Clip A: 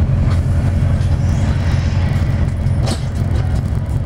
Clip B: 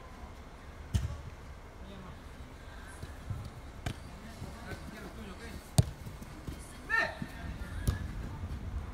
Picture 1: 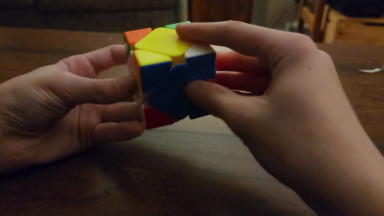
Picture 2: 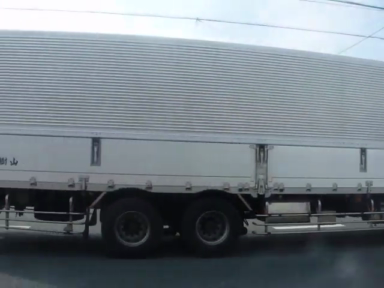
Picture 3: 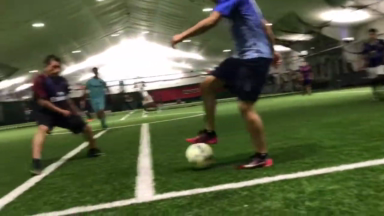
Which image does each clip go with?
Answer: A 2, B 3